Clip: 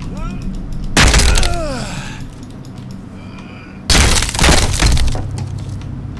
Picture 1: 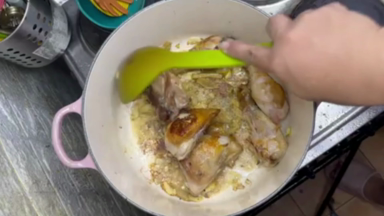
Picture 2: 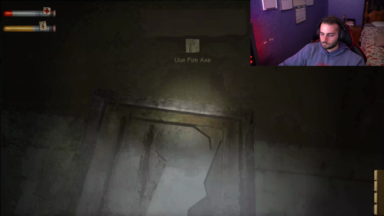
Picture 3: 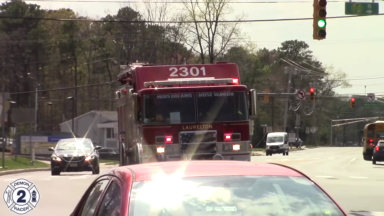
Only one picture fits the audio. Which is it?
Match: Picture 2